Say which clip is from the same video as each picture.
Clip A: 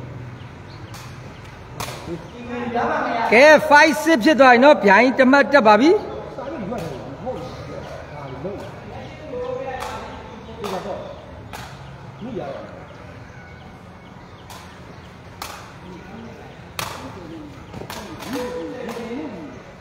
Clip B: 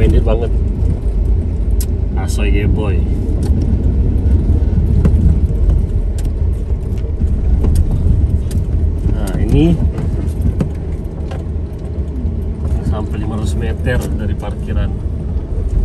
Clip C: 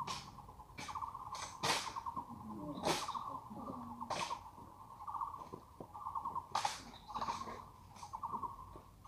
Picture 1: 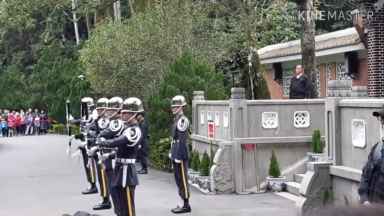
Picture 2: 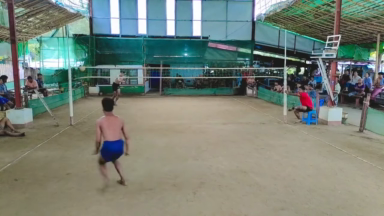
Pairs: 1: C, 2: A